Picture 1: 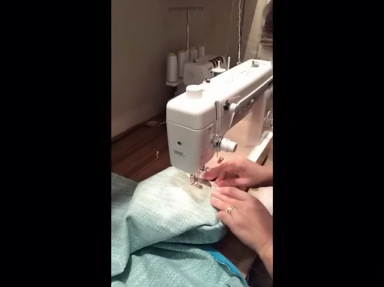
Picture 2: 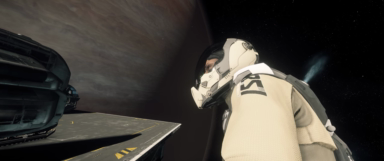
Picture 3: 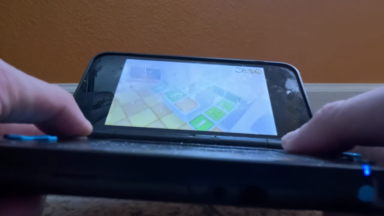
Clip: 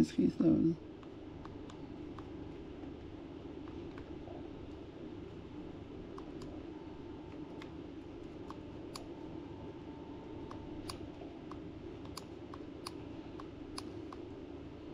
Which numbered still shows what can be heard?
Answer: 3